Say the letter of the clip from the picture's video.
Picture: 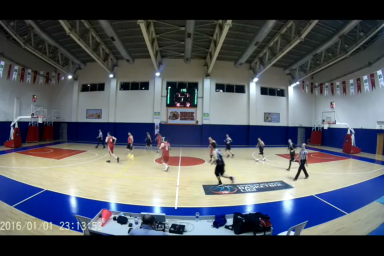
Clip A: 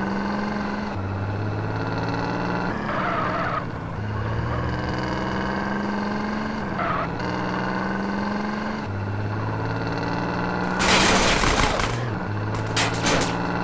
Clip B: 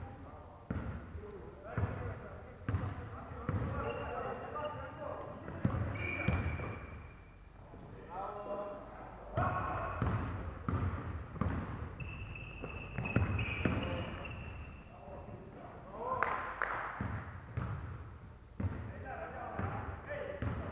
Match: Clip B